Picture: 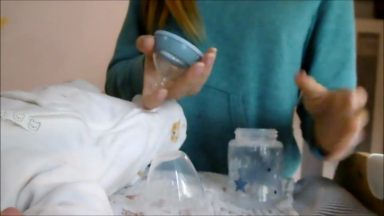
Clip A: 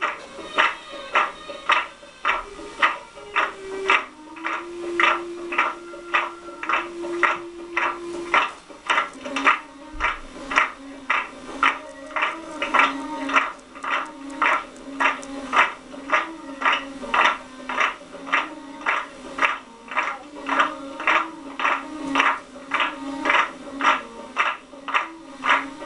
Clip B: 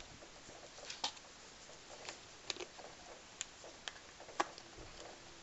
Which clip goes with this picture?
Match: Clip B